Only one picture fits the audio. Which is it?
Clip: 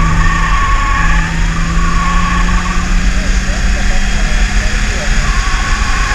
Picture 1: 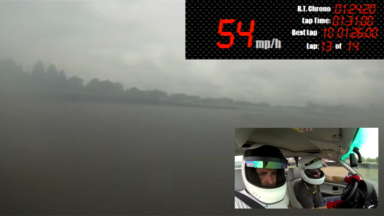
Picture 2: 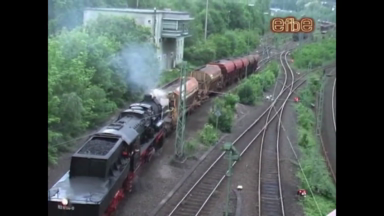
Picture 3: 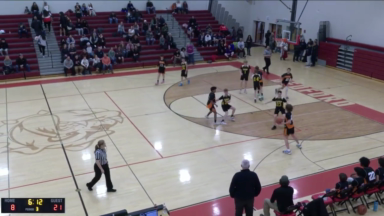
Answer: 1